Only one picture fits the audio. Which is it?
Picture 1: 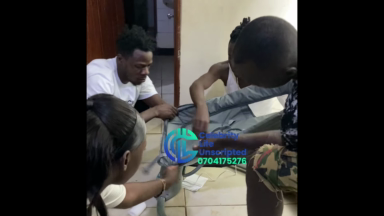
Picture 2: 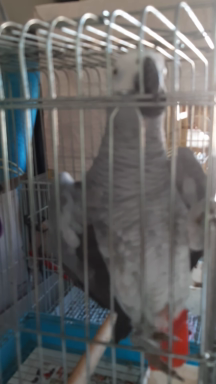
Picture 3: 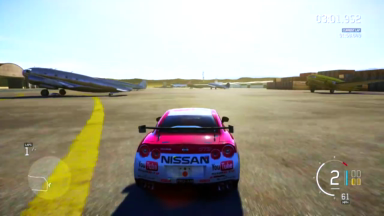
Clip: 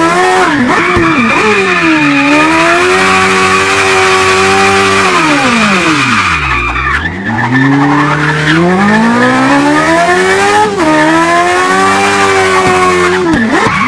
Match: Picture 3